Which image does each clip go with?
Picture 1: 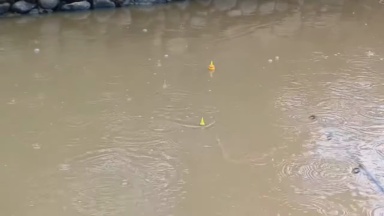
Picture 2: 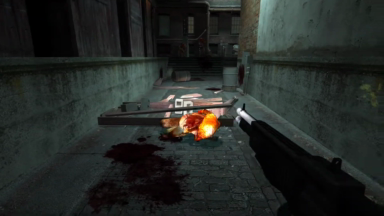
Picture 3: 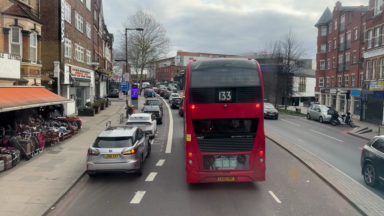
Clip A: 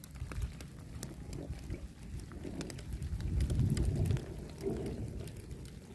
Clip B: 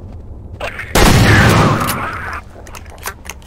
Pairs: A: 1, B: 2